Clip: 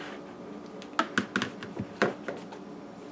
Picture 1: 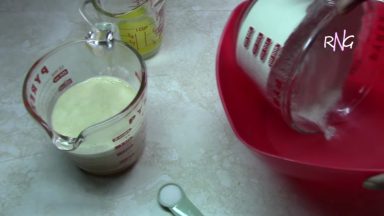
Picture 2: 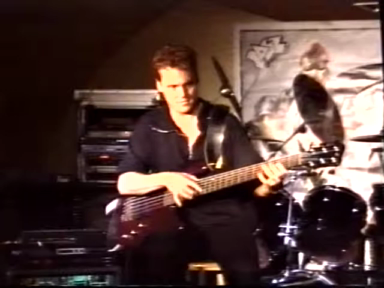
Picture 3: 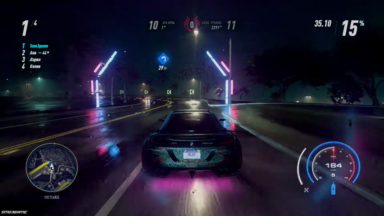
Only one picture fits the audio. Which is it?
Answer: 1